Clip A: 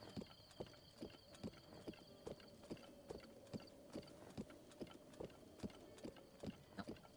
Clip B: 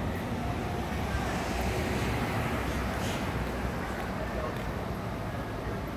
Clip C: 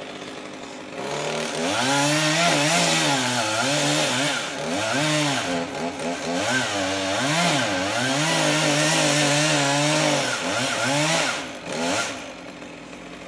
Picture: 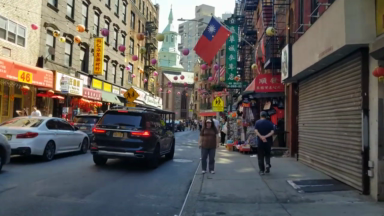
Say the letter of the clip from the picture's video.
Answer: B